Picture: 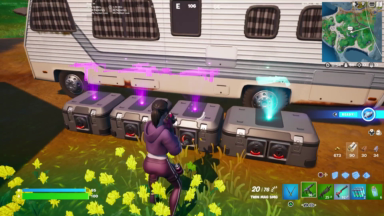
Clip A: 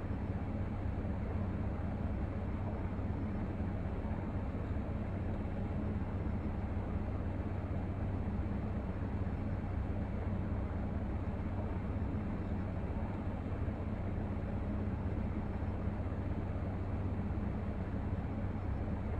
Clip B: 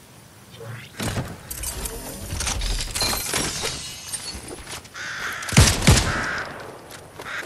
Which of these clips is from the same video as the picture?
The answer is B